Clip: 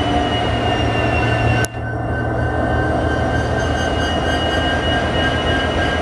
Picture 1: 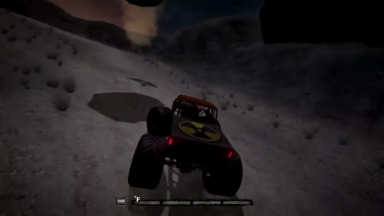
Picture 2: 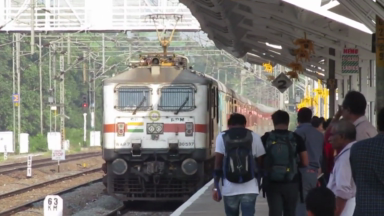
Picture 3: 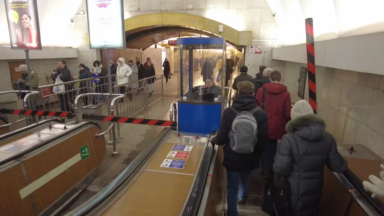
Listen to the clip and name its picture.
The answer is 2